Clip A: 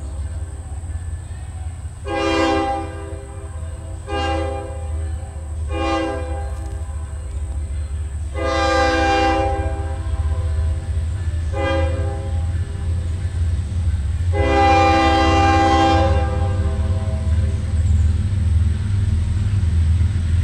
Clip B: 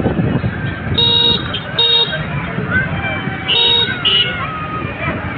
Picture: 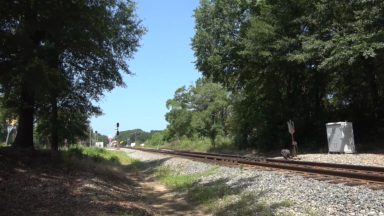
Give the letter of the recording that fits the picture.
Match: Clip A